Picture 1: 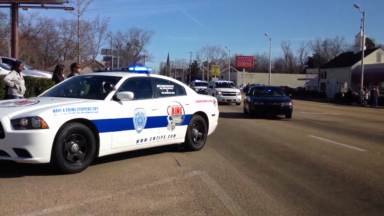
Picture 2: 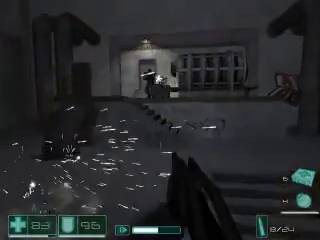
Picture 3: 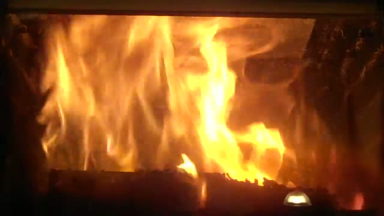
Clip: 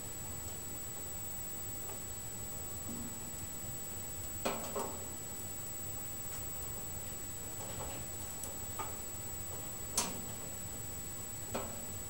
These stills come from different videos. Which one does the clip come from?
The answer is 3